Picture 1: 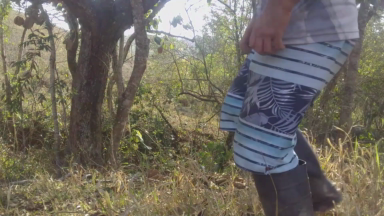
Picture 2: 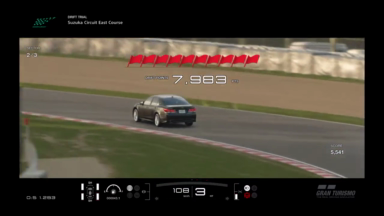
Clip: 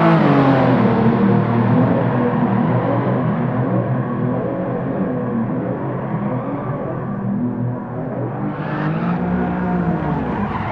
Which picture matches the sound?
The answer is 2